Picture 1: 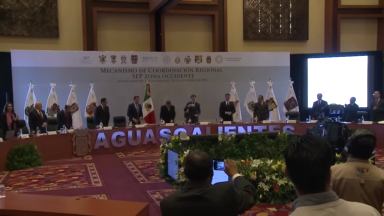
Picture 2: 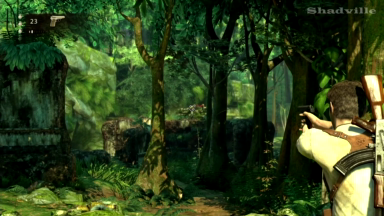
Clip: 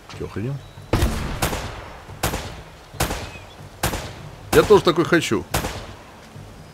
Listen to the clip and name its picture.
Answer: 2